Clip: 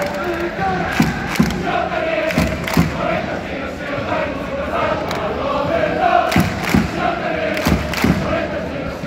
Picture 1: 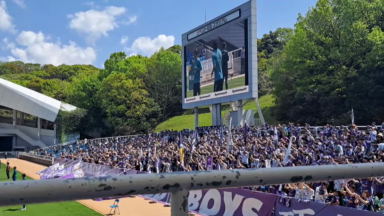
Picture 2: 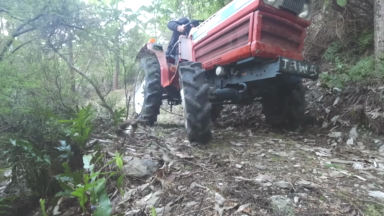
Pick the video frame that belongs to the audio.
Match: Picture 1